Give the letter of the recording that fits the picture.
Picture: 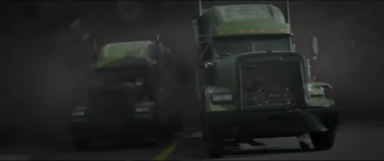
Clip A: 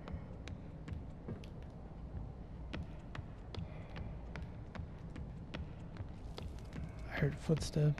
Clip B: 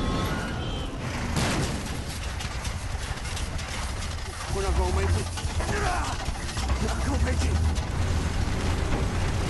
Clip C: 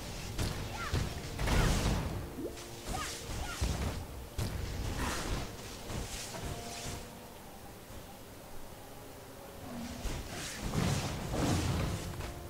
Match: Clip B